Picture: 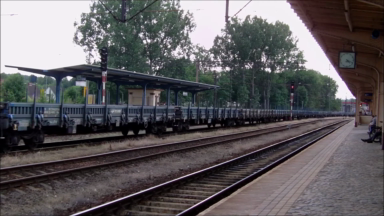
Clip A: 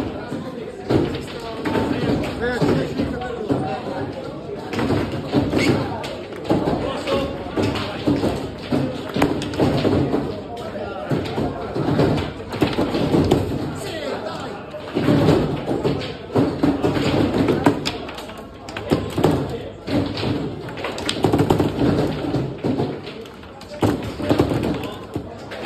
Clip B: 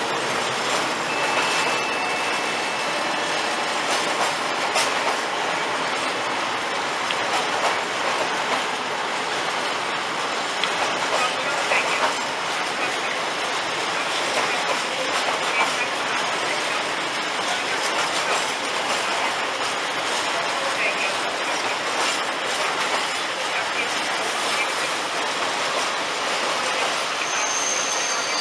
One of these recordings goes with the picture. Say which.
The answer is B